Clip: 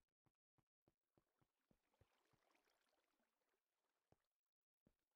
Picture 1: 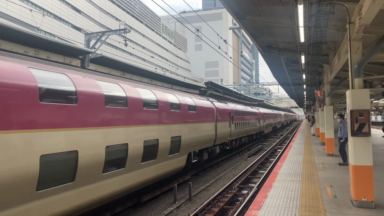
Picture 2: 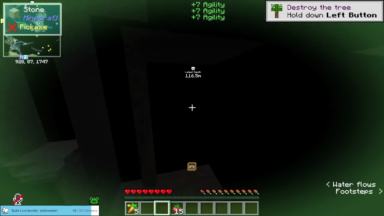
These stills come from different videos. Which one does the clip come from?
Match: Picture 2